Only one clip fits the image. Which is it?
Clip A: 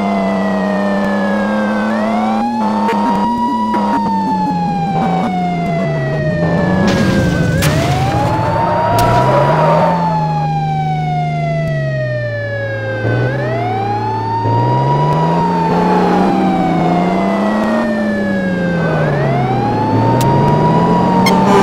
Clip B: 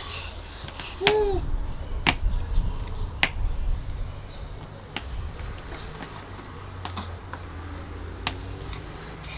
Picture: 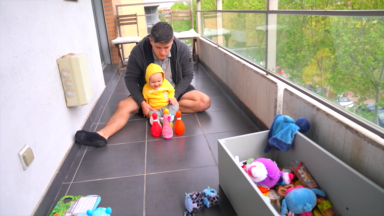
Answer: B